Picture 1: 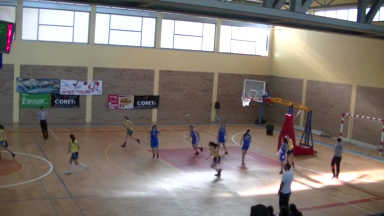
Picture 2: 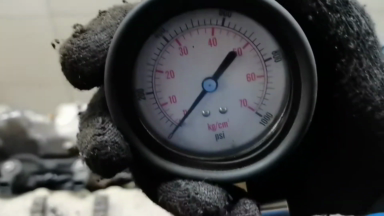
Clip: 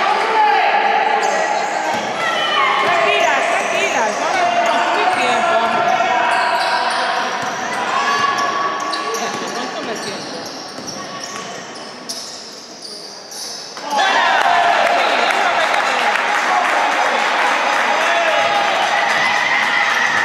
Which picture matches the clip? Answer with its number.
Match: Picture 1